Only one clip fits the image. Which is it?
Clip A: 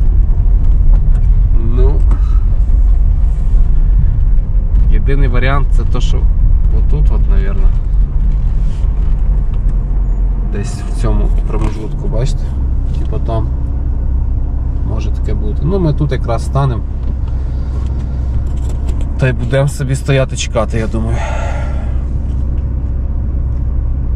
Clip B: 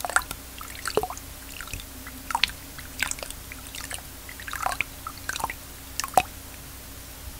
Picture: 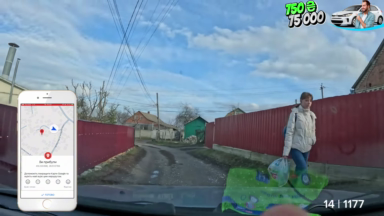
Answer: A